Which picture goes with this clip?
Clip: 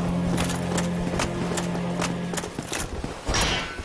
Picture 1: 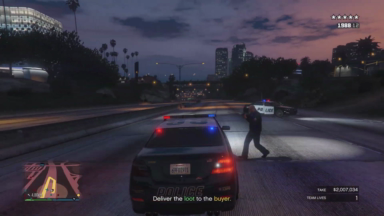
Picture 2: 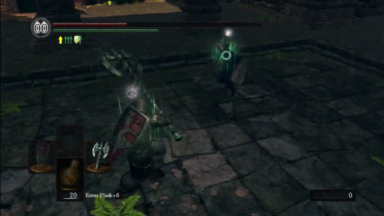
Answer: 2